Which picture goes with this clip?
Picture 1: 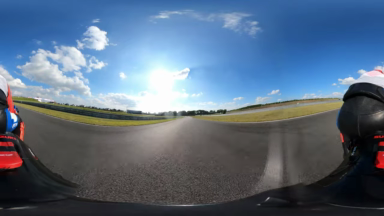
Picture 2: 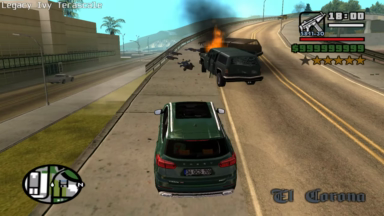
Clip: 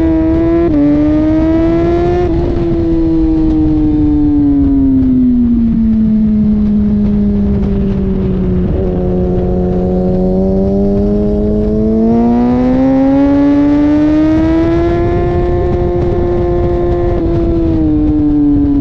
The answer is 1